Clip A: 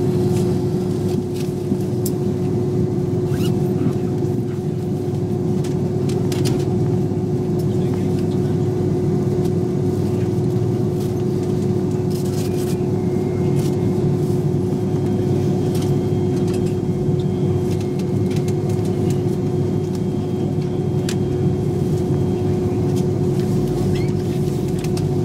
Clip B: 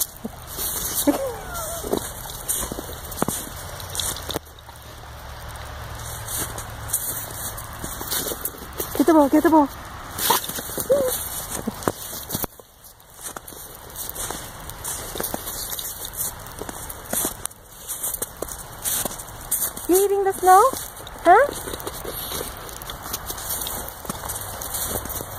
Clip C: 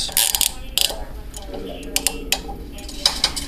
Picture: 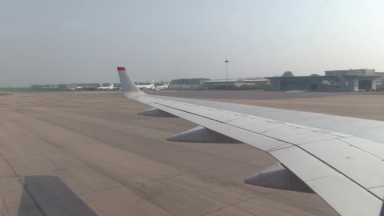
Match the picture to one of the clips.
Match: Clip A